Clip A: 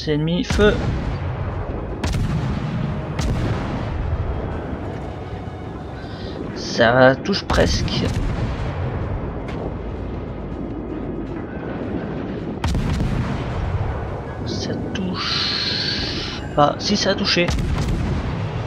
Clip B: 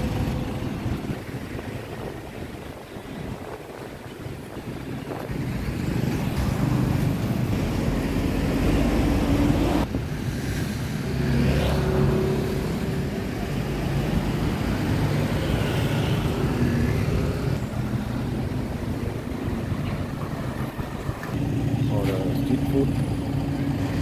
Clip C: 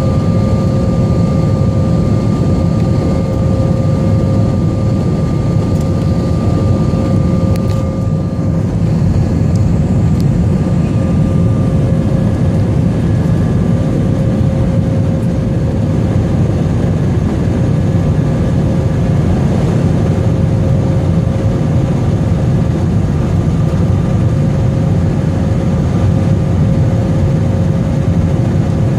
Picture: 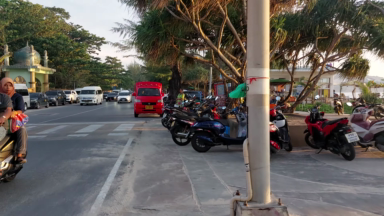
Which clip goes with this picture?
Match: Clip B